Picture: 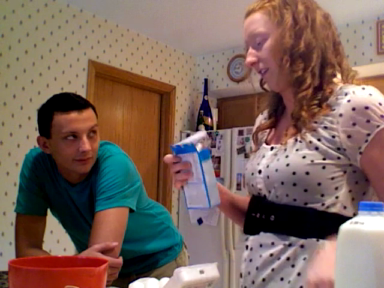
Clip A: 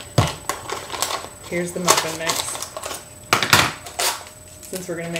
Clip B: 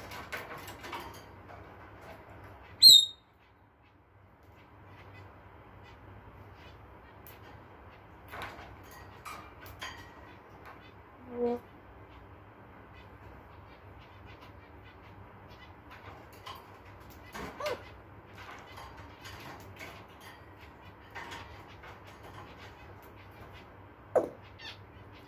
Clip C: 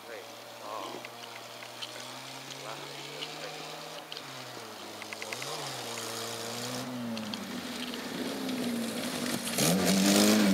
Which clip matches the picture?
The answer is A